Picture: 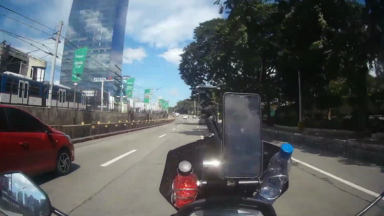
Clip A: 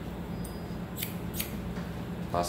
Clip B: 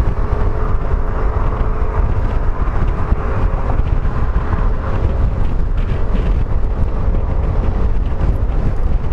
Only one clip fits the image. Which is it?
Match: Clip B